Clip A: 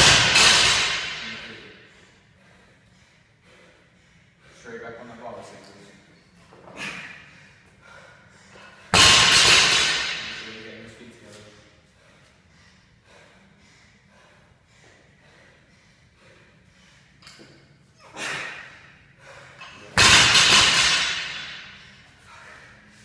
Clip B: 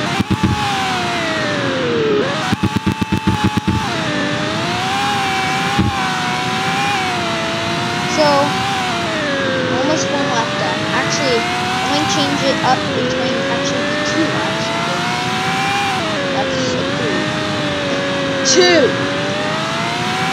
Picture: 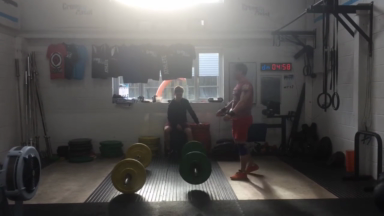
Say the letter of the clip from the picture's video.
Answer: A